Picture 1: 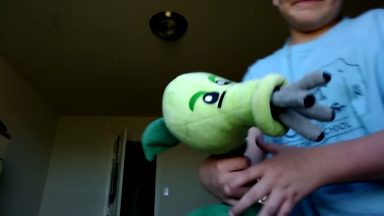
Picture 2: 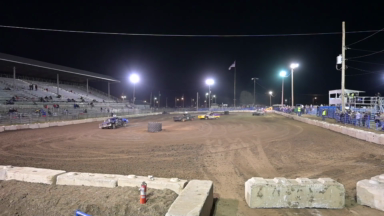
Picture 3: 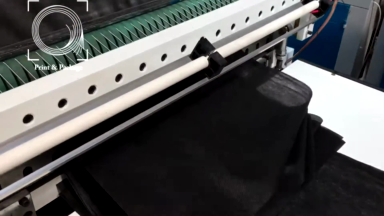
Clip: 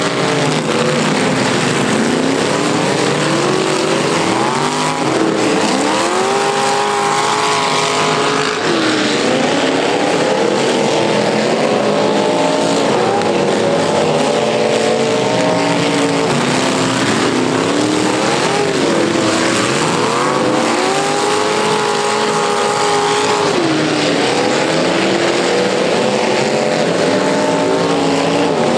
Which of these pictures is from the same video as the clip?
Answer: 2